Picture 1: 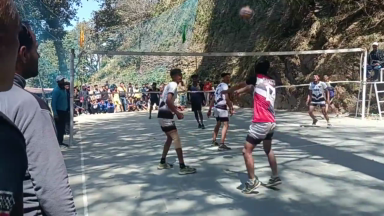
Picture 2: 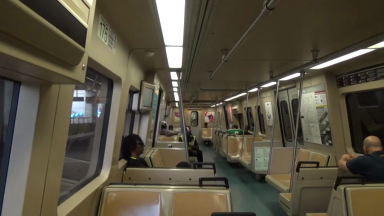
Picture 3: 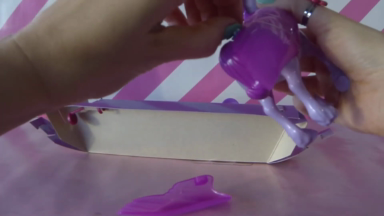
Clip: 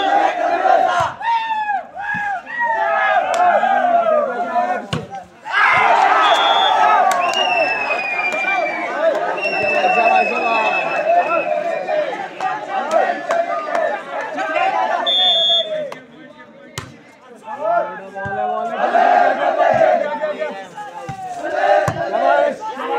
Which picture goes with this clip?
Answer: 1